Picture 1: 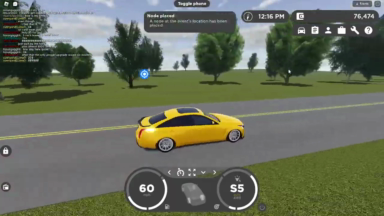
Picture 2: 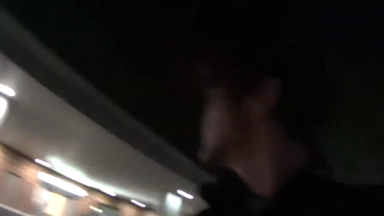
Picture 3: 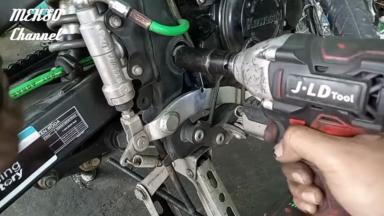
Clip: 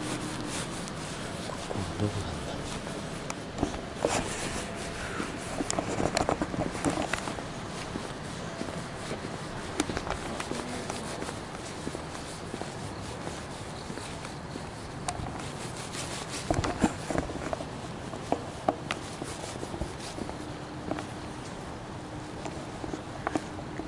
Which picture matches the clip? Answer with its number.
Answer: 2